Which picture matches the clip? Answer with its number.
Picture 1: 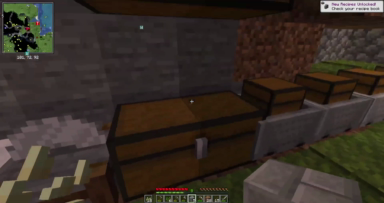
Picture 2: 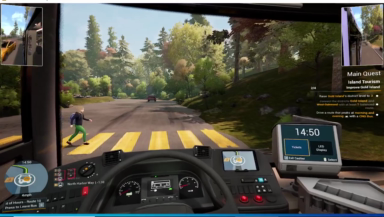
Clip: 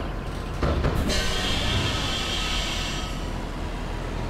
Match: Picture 2